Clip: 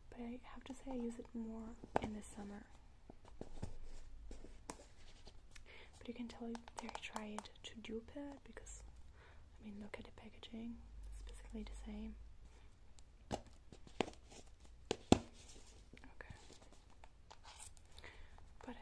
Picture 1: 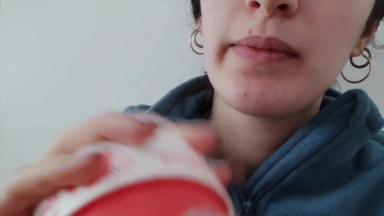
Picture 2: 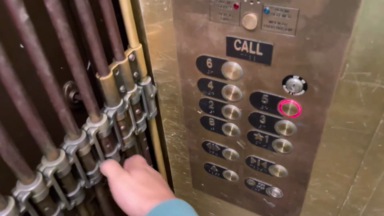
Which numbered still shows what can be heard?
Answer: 1